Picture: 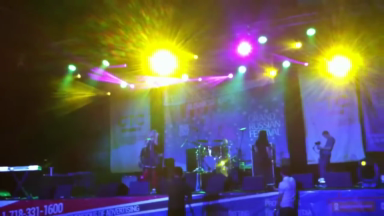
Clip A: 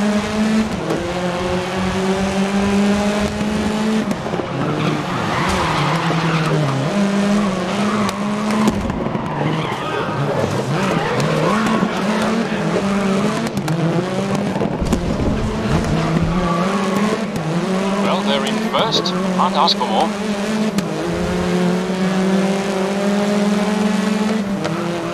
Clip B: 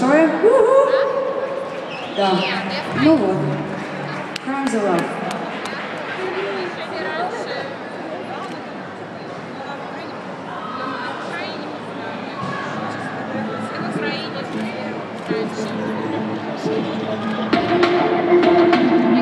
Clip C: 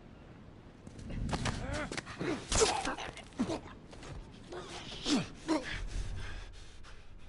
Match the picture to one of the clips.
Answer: B